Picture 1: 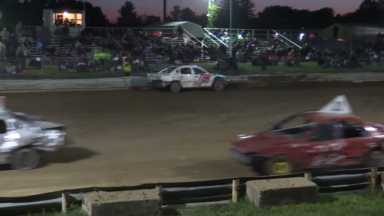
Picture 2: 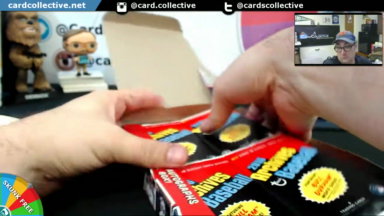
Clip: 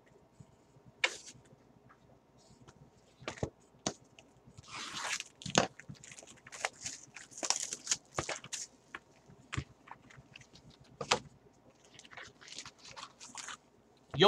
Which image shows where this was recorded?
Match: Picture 2